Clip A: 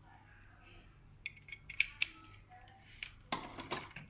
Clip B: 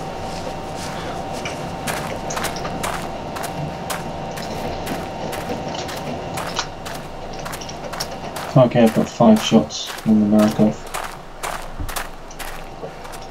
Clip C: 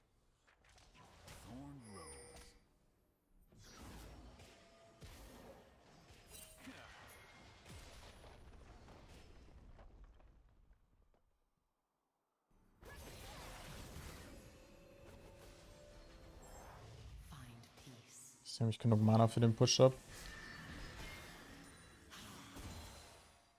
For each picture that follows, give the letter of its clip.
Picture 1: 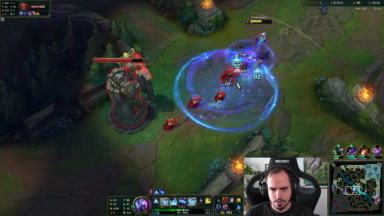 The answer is C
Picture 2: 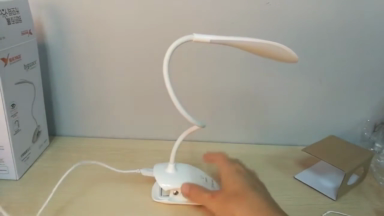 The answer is A